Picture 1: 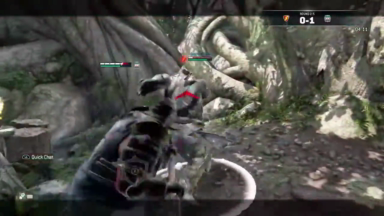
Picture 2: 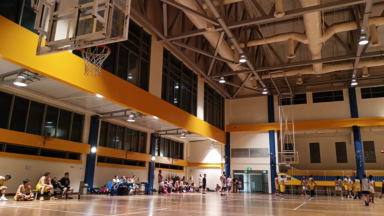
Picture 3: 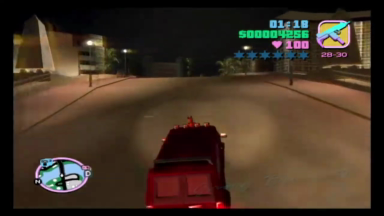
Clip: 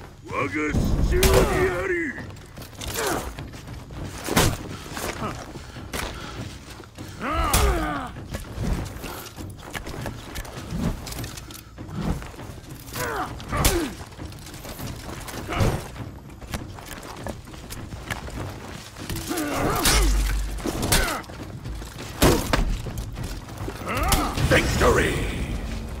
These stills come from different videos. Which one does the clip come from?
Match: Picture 1